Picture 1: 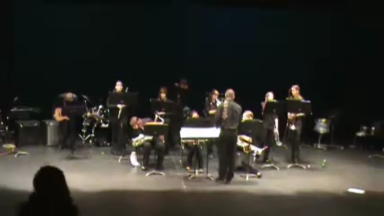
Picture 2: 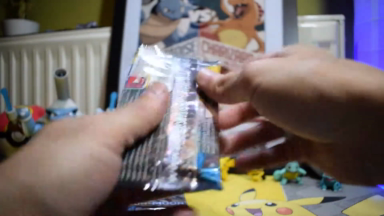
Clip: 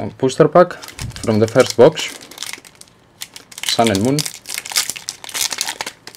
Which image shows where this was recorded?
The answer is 2